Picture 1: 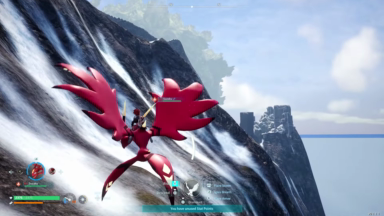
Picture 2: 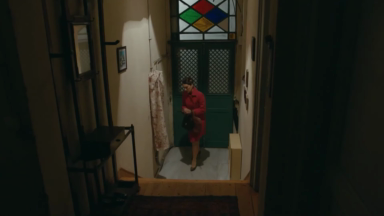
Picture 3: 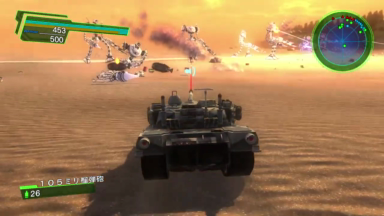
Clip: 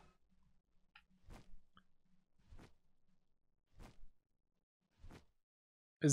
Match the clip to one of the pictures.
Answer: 1